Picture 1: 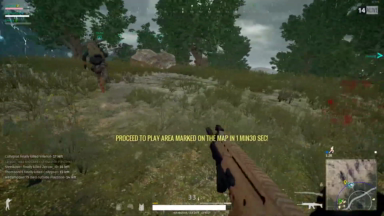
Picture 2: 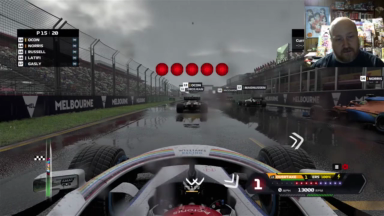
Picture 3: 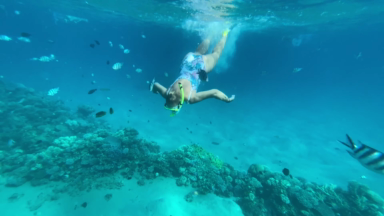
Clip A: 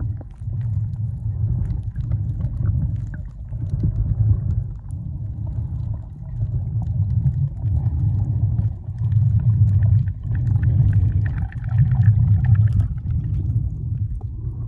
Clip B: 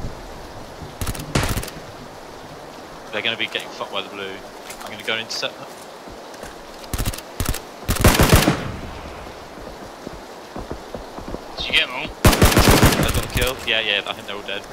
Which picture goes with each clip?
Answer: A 3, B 1